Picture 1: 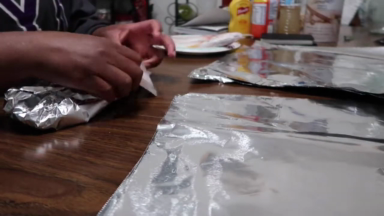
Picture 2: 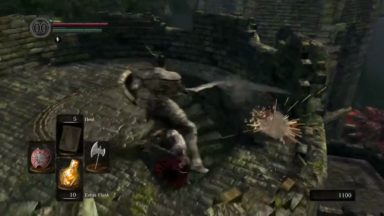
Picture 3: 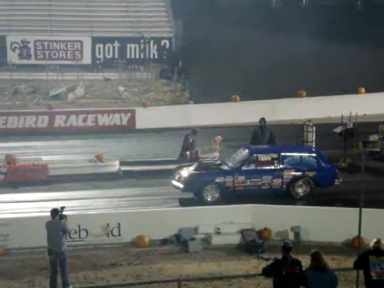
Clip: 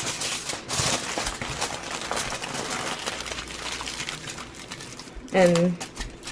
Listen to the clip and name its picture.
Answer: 1